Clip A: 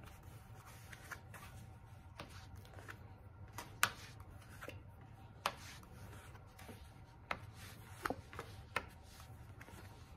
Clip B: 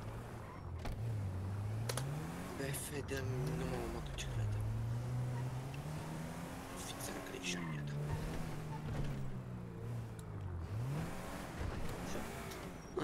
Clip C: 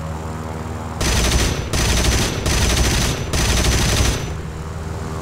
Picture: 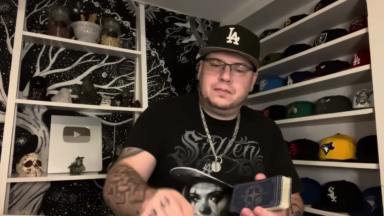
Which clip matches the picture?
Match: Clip A